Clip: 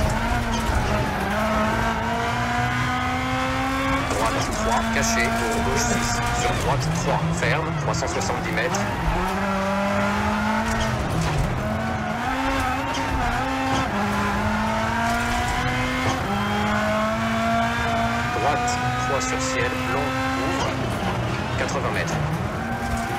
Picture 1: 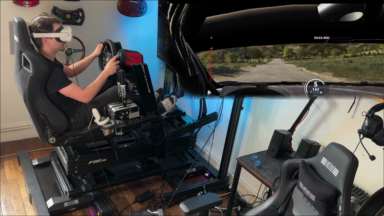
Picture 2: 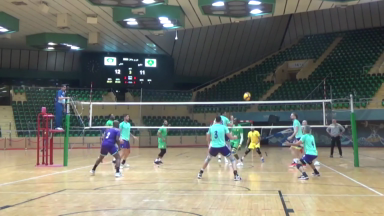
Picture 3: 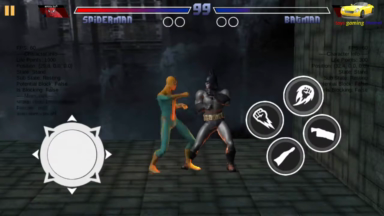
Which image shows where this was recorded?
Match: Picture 1